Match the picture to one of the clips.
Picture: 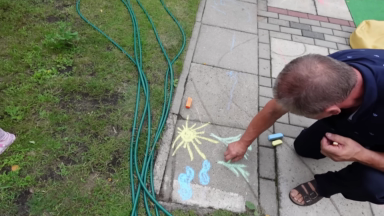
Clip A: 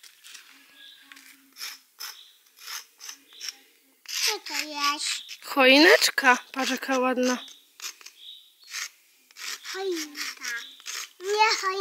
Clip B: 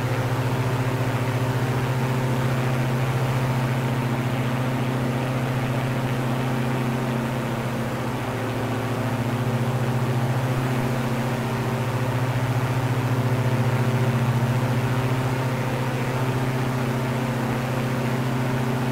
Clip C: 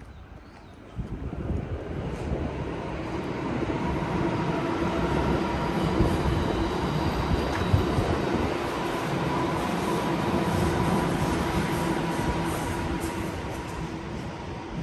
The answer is A